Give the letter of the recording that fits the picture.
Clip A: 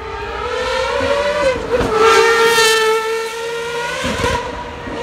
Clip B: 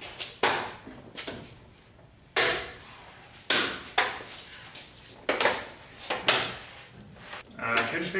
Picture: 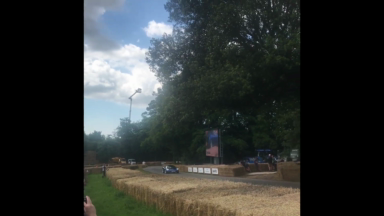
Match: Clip A